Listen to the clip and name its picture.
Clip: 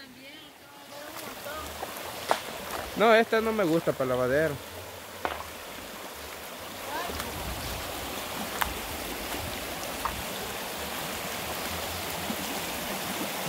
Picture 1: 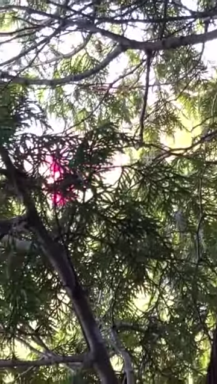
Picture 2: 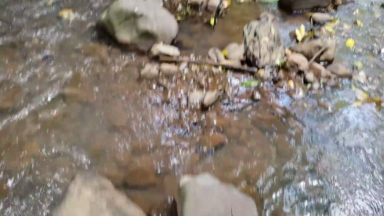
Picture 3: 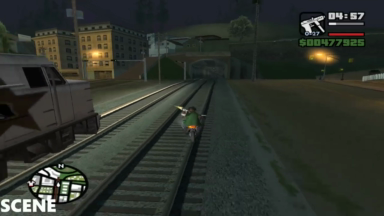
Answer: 2